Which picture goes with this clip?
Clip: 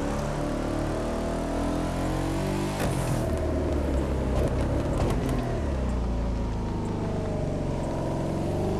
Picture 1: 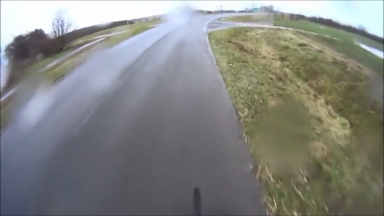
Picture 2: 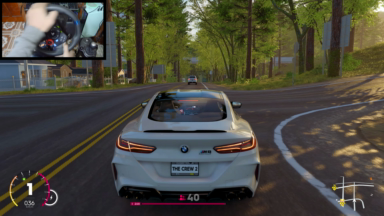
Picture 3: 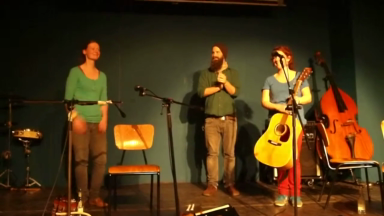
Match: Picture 2